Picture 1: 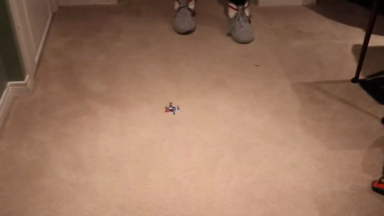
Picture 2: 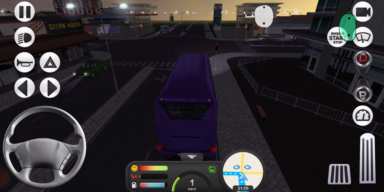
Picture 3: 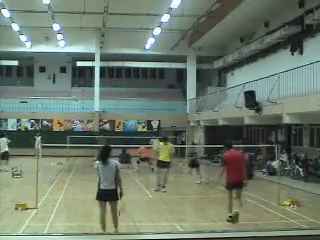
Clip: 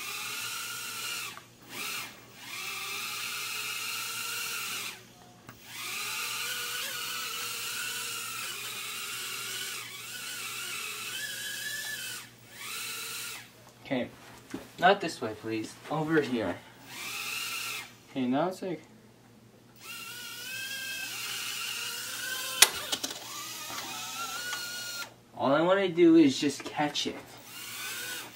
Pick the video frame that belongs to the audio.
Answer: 1